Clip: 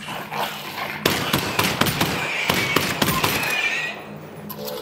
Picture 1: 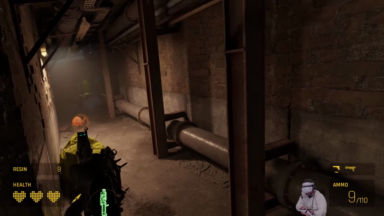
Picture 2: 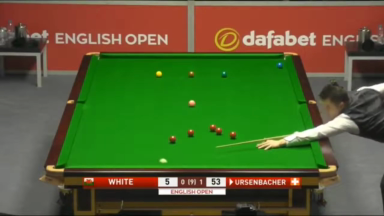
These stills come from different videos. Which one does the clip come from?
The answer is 1